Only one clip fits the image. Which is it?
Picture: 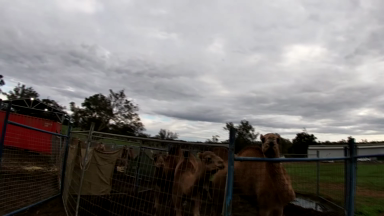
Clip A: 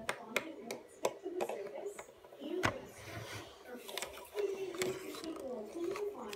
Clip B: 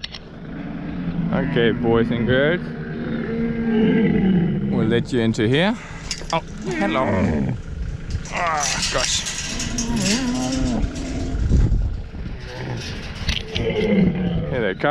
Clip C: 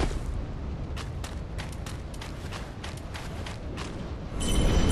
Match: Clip B